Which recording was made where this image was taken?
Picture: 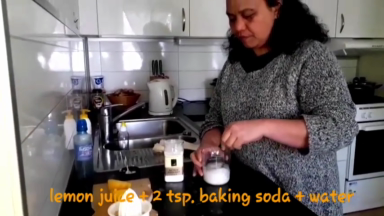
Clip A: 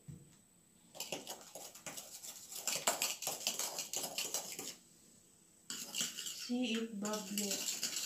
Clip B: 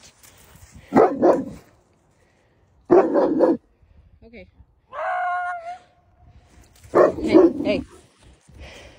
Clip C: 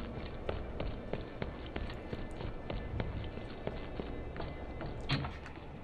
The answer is A